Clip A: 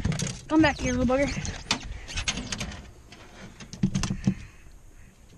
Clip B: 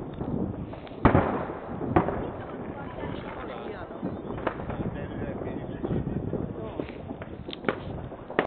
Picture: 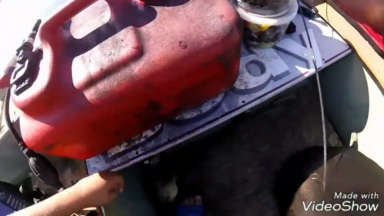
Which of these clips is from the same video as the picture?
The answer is A